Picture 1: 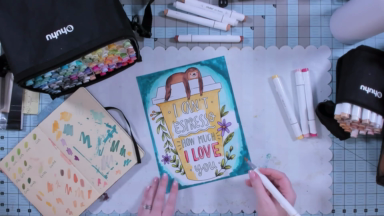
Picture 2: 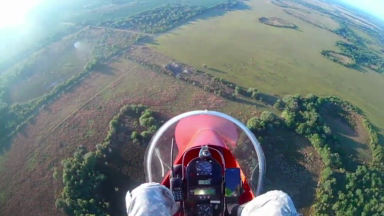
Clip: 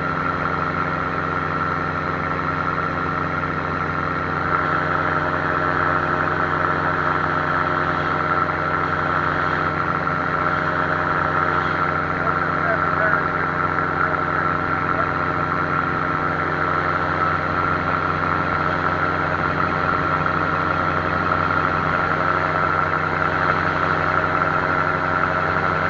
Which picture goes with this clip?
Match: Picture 2